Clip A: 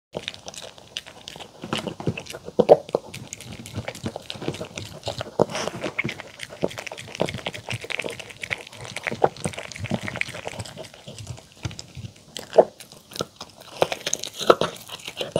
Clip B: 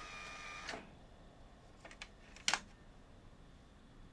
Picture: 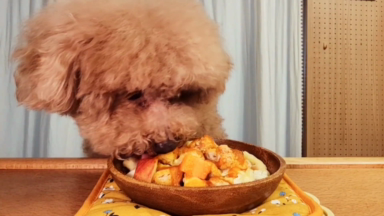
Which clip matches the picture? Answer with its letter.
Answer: A